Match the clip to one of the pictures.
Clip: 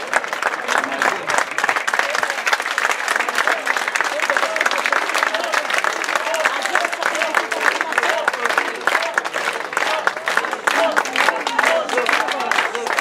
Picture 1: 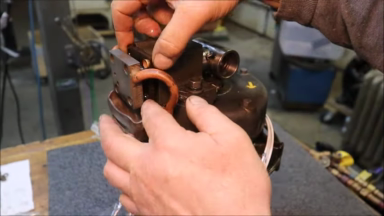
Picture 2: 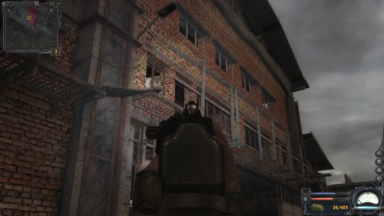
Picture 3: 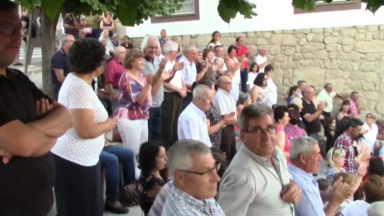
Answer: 3